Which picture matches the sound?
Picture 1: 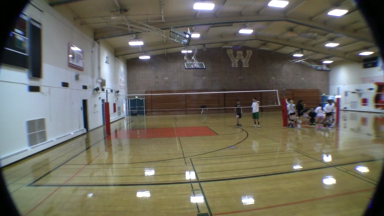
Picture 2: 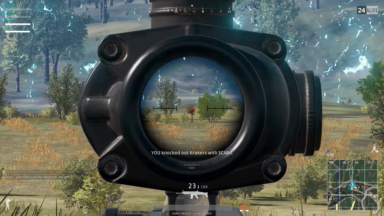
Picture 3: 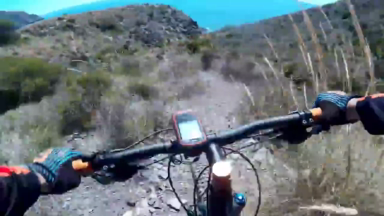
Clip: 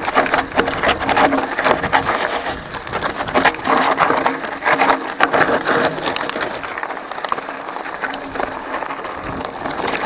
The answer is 3